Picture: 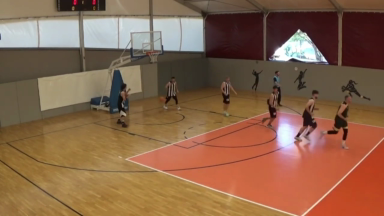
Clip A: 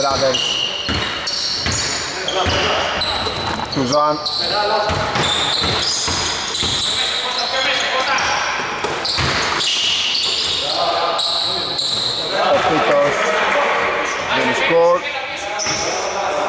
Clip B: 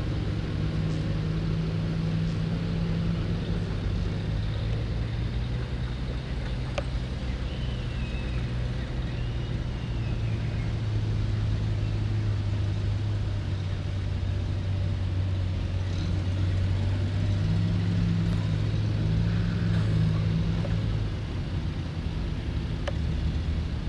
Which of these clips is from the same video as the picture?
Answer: A